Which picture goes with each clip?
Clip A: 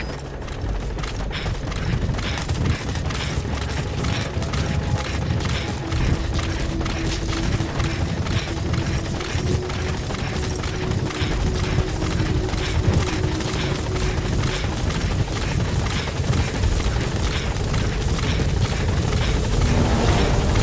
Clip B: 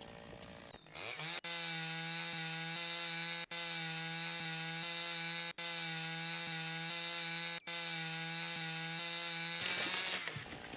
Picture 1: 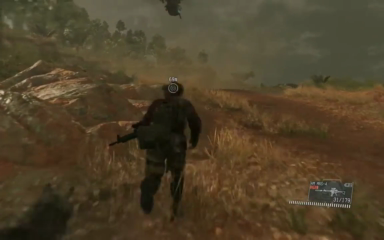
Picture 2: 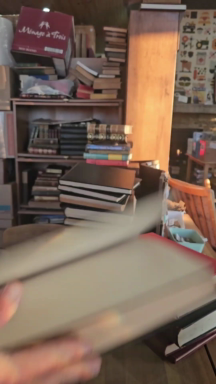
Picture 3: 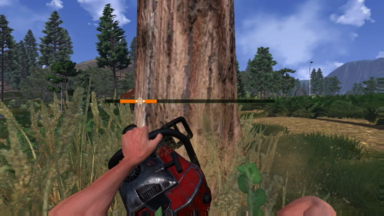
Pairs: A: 1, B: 3